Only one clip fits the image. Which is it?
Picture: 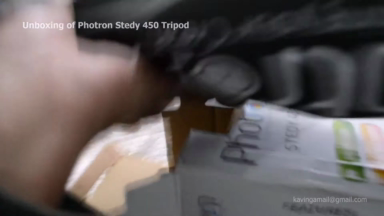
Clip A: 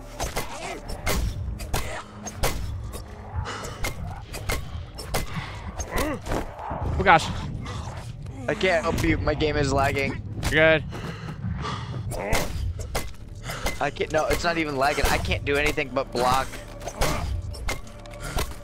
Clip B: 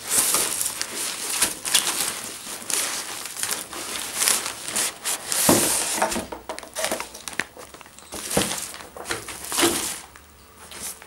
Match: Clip B